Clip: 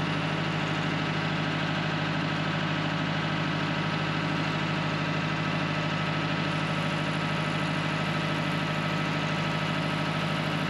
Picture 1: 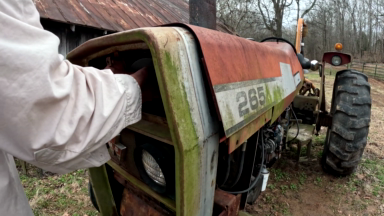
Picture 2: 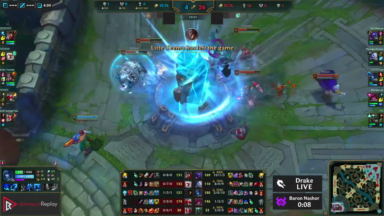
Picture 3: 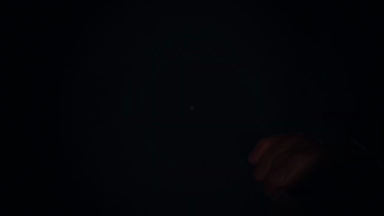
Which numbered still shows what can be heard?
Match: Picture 1